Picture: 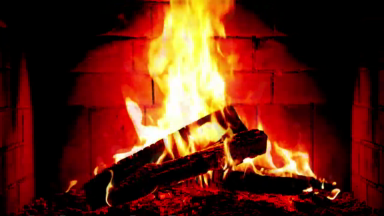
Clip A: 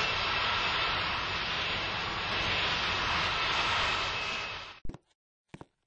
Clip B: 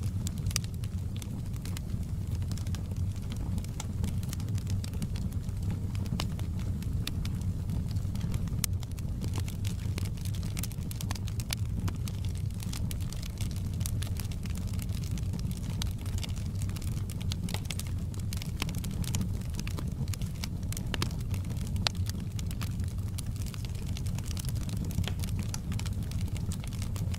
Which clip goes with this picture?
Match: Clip B